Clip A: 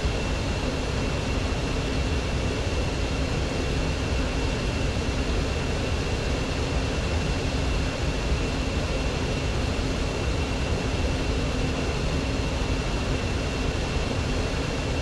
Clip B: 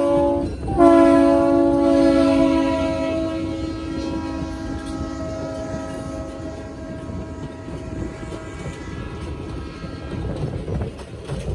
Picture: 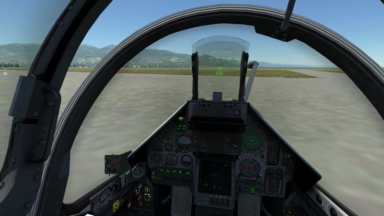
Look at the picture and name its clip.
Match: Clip A